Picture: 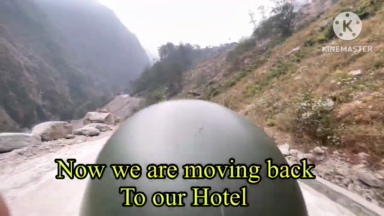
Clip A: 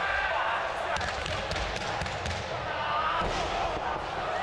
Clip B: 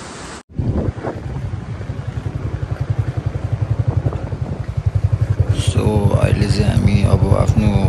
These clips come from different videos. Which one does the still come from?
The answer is B